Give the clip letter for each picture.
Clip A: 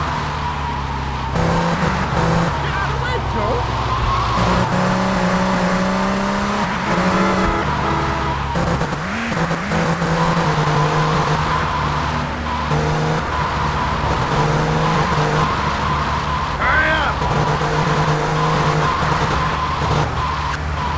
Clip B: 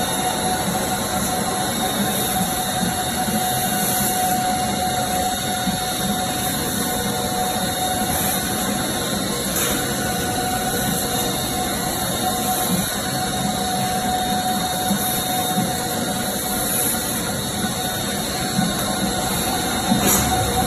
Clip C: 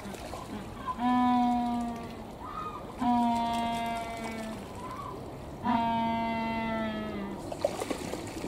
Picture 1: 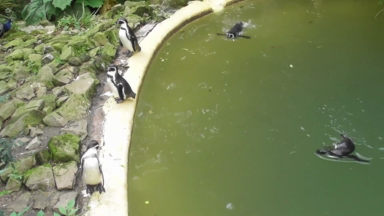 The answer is C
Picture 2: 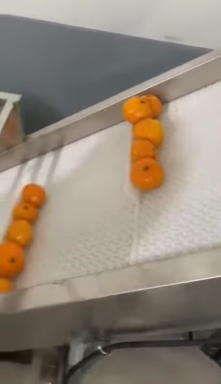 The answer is B